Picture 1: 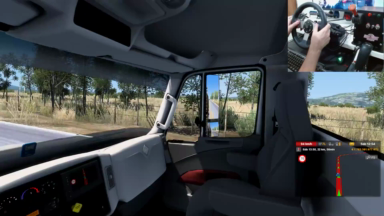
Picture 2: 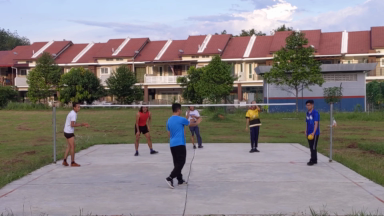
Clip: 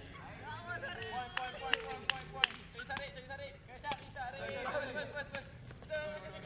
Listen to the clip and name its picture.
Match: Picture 2